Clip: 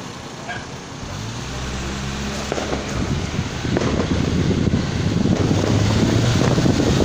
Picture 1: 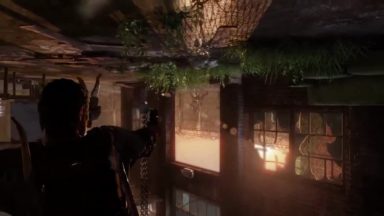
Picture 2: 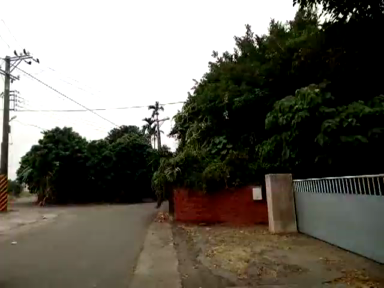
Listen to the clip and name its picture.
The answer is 2